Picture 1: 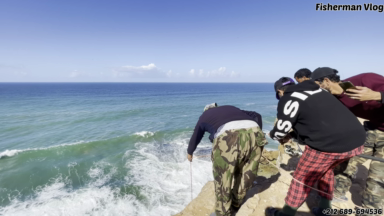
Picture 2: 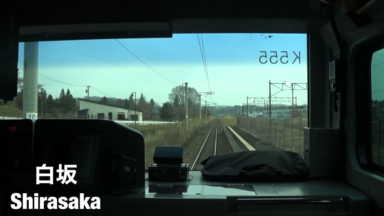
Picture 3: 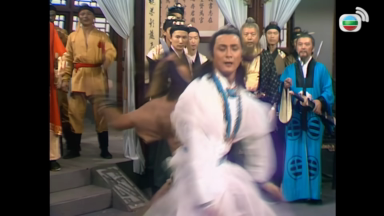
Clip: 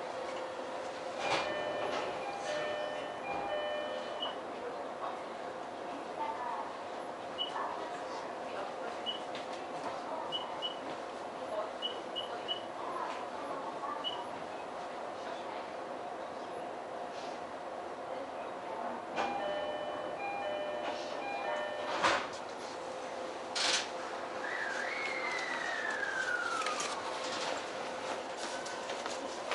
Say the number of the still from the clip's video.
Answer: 2